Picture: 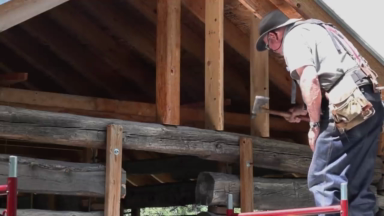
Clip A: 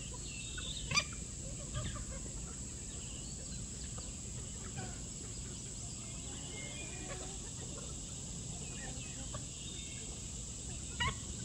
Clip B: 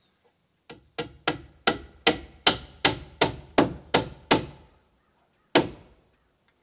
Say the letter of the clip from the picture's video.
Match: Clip B